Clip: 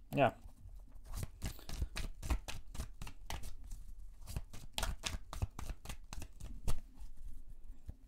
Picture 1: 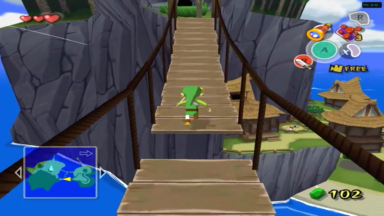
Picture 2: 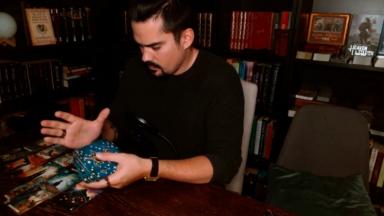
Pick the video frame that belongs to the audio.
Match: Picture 2